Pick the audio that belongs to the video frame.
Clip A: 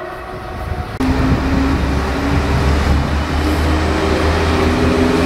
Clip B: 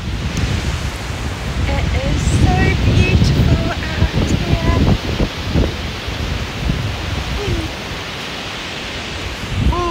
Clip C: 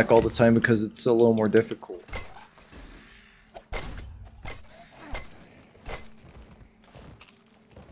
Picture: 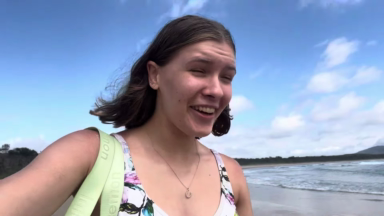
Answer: B